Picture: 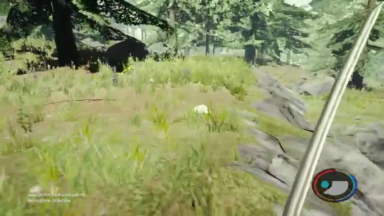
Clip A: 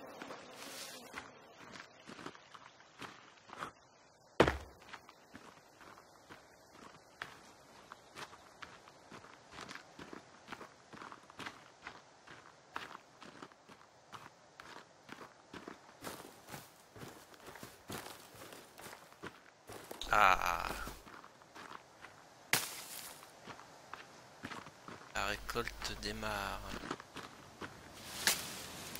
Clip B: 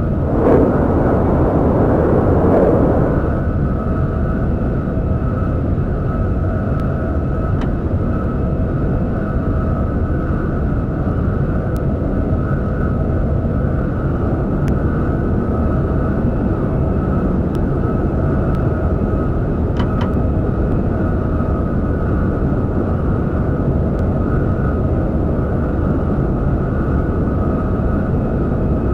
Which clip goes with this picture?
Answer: A